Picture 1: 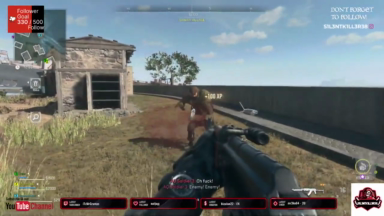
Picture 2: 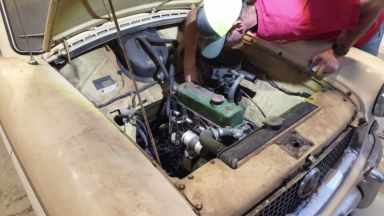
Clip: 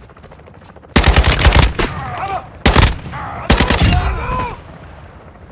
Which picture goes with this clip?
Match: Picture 1